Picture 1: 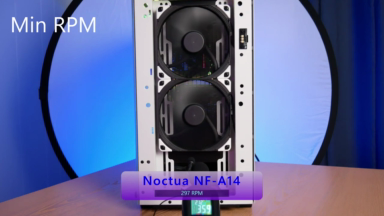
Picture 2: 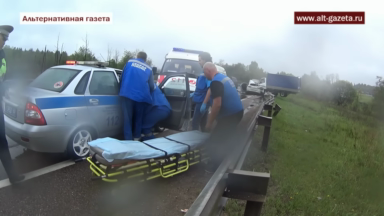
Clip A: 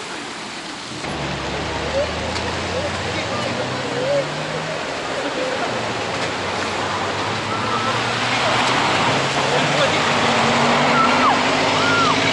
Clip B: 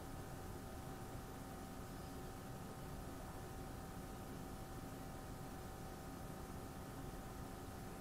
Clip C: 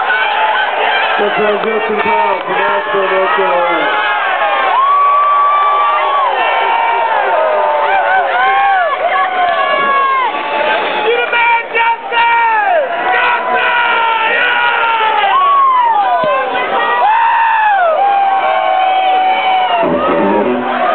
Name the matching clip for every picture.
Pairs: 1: B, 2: A